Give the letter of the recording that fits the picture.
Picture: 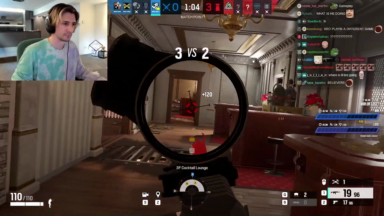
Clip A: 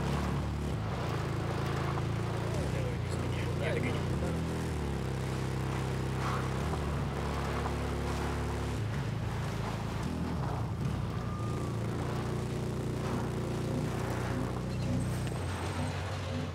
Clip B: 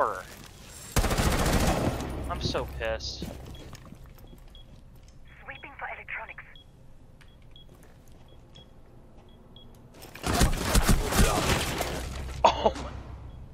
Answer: B